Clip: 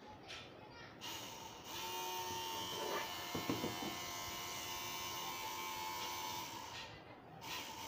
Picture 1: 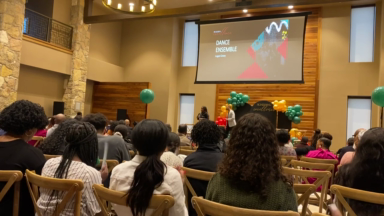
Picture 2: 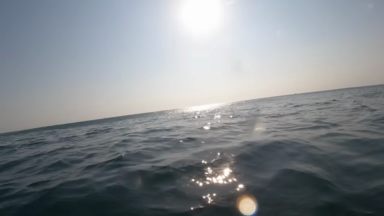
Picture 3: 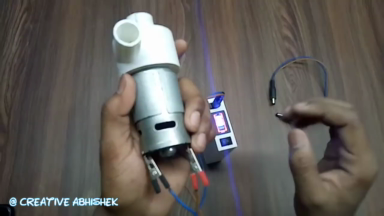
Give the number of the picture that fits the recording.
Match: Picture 3